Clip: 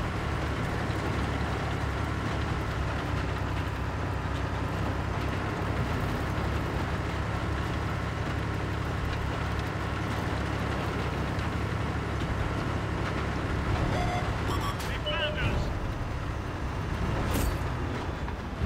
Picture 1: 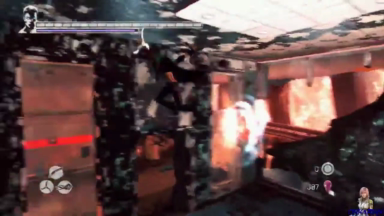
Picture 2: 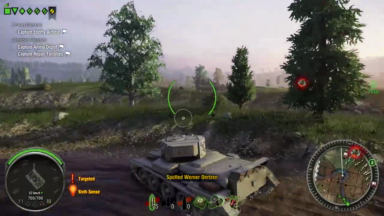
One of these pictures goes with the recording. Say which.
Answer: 2